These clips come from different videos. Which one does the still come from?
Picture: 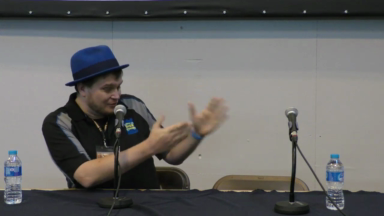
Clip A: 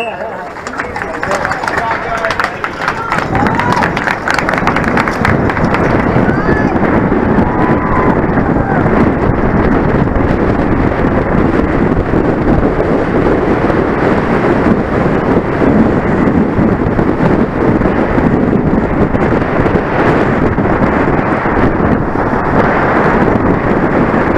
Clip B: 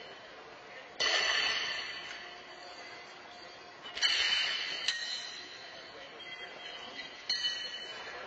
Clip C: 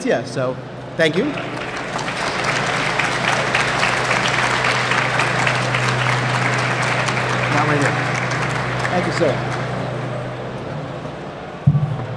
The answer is C